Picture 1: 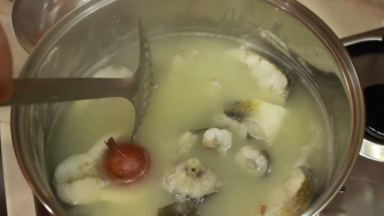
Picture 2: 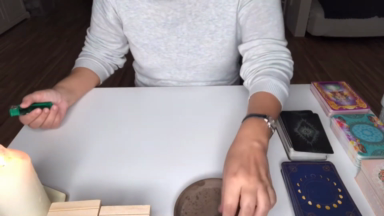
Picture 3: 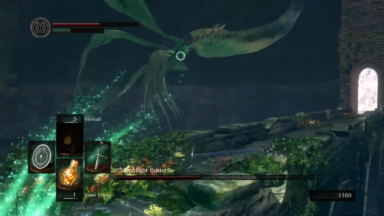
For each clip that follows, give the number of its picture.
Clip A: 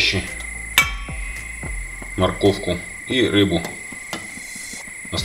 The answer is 1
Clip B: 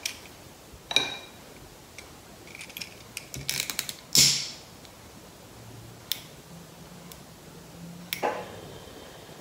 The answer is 2